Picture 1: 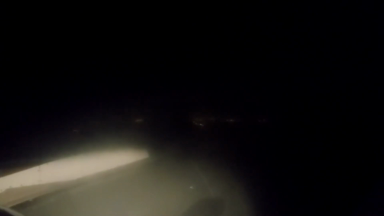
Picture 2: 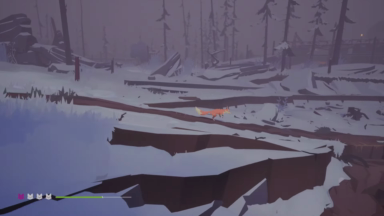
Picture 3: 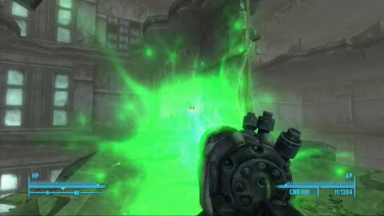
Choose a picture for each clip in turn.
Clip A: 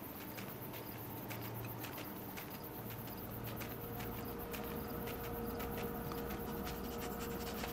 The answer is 2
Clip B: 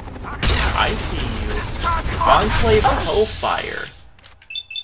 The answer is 3